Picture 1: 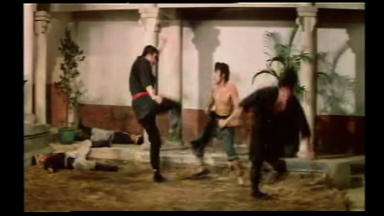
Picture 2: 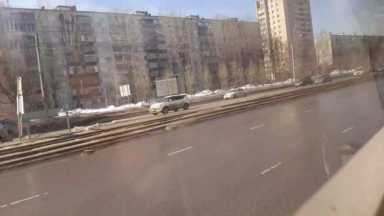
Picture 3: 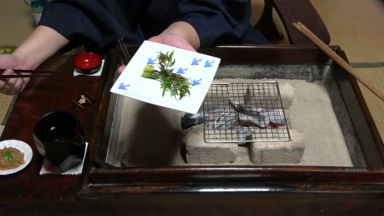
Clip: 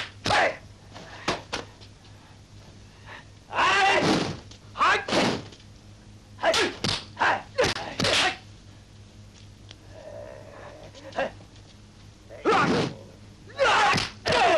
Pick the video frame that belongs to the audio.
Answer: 1